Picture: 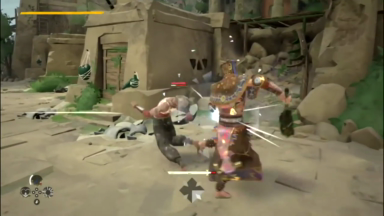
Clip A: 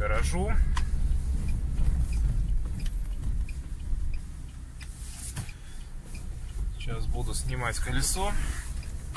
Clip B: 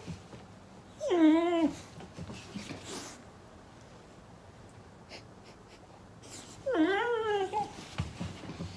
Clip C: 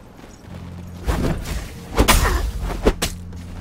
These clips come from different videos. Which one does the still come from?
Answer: C